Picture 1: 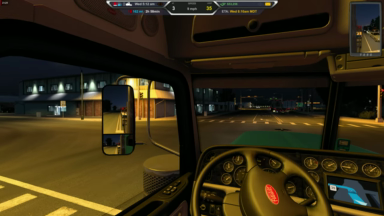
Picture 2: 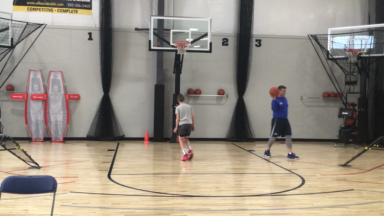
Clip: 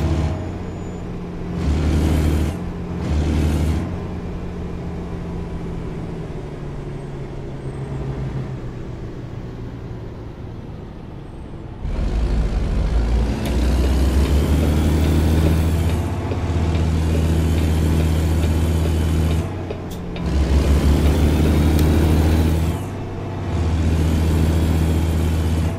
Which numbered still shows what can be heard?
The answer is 1